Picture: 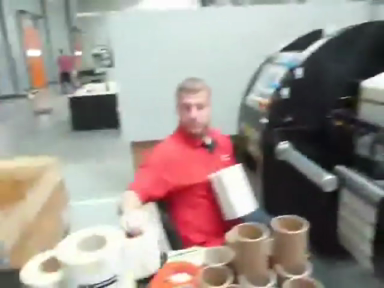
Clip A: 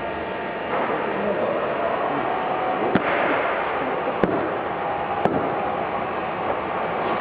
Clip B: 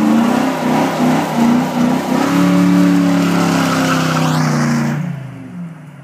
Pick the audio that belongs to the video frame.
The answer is A